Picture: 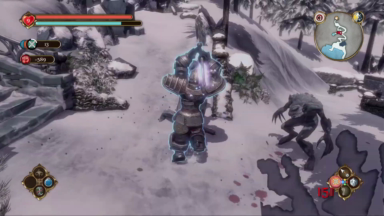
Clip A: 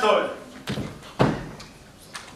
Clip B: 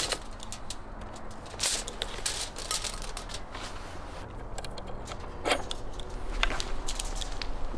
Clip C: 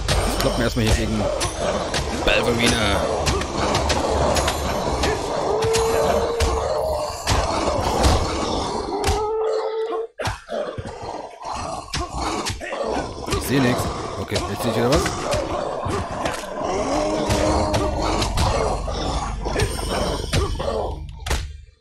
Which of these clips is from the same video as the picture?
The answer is C